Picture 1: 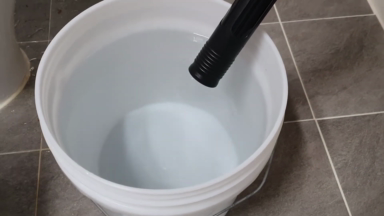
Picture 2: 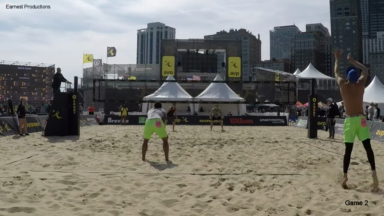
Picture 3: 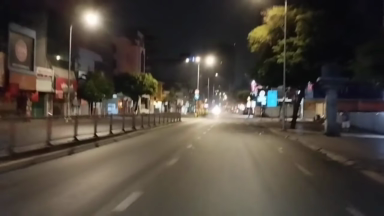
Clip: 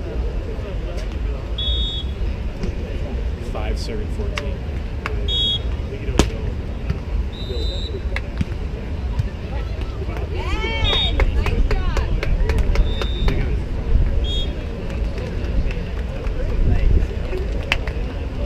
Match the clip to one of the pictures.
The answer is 2